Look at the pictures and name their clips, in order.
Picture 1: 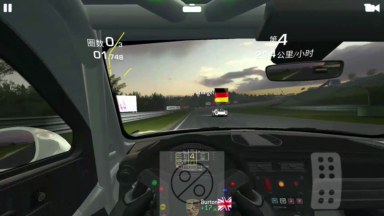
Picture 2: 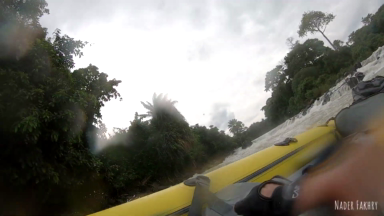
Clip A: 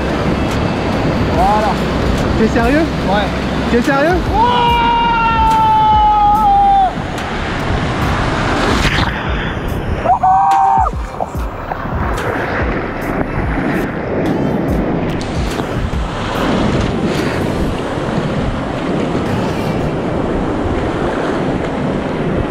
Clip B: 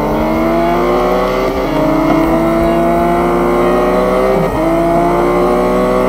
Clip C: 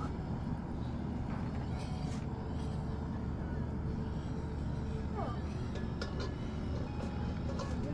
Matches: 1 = B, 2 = A